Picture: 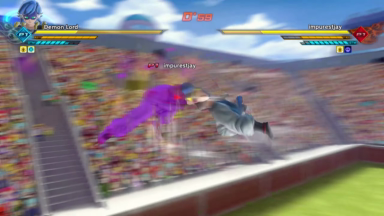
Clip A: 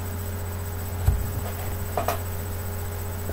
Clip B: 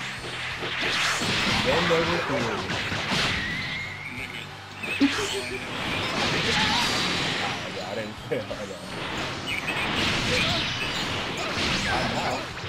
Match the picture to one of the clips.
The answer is B